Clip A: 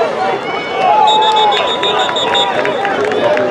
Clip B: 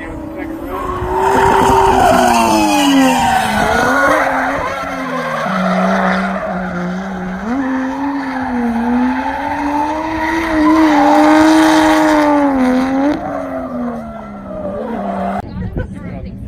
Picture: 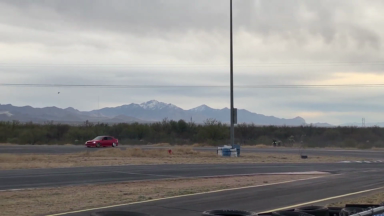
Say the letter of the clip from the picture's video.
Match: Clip B